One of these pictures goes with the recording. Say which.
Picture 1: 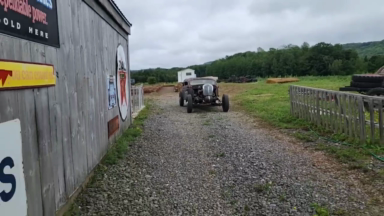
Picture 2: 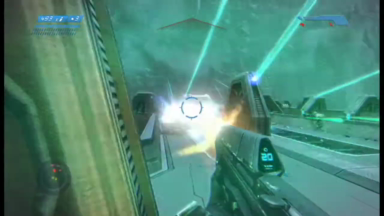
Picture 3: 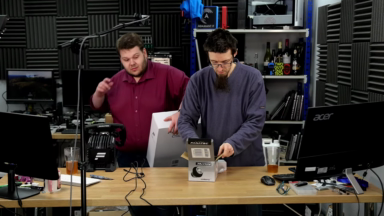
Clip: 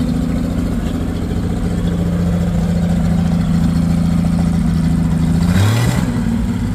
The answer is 1